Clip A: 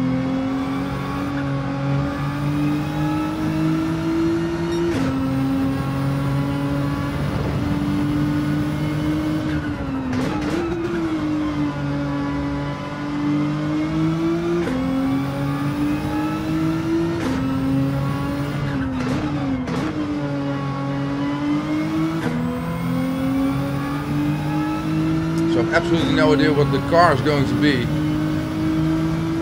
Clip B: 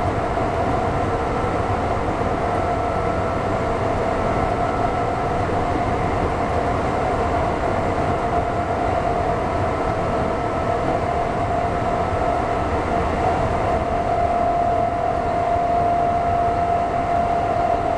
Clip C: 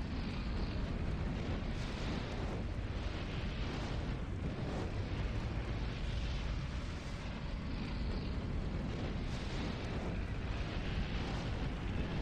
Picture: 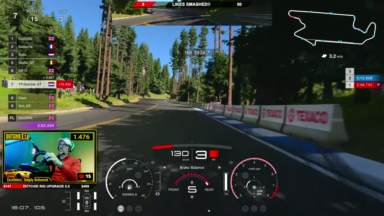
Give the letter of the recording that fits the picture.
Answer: A